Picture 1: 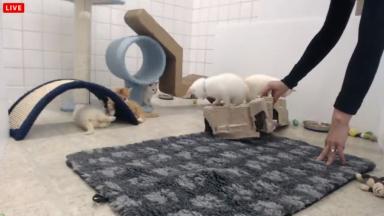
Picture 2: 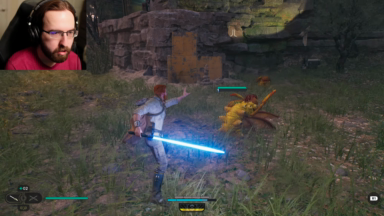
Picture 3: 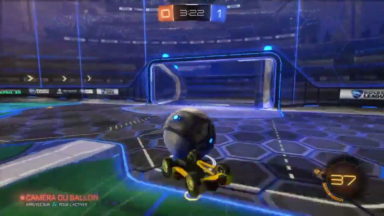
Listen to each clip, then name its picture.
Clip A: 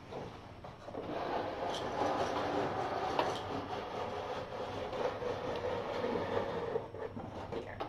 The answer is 1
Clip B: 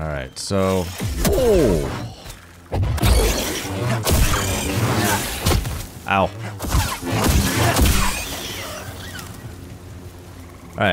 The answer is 2